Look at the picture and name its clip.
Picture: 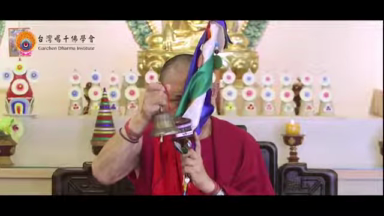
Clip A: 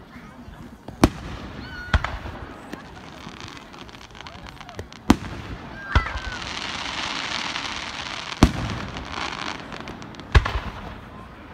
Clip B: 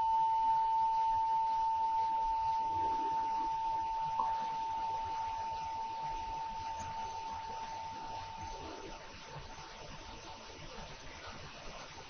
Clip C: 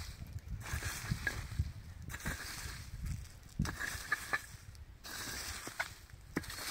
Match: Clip B